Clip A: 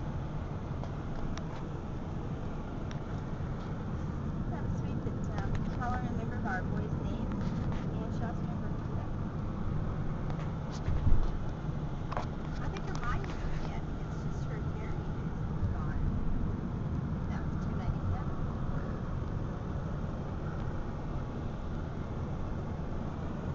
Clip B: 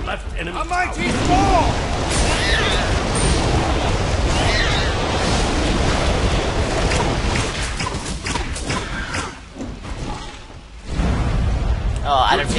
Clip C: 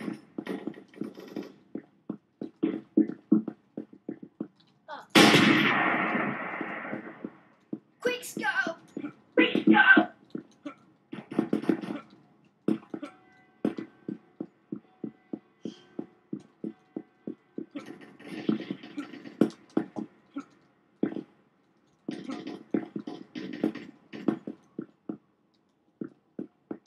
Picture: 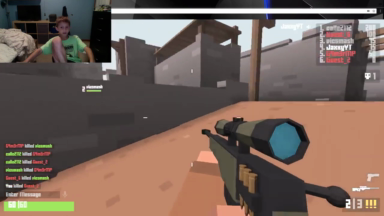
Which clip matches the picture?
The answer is C